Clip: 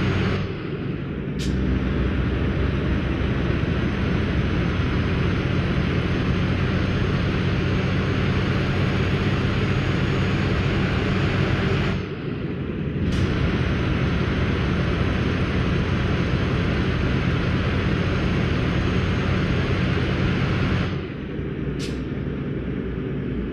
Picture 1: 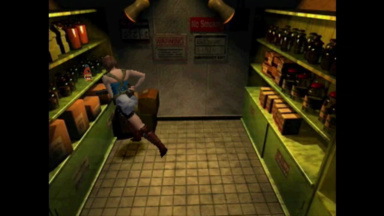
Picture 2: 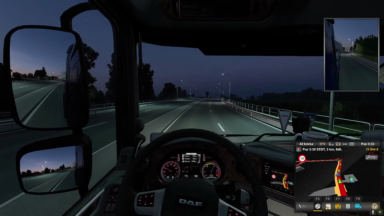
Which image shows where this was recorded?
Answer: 2